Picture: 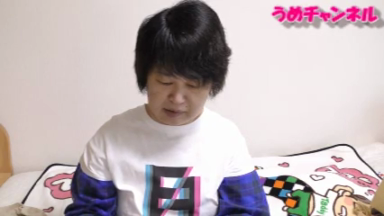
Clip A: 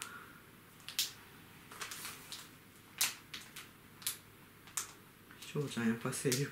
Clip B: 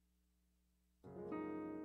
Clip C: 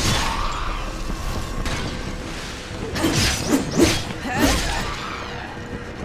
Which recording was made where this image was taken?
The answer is A